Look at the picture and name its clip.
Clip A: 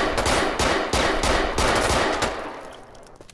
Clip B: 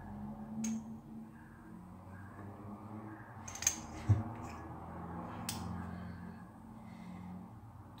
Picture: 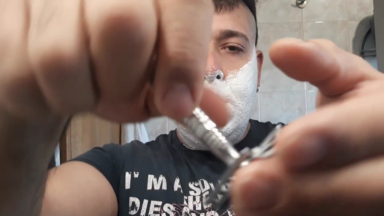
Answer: B